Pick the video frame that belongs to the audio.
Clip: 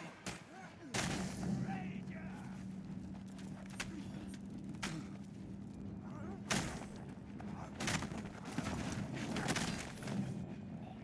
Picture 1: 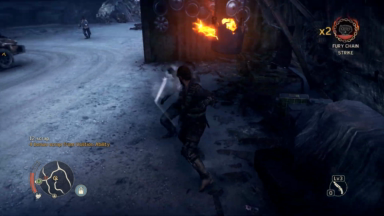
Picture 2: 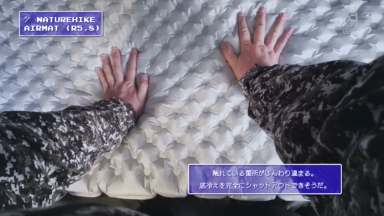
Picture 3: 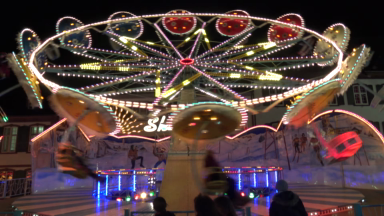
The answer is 1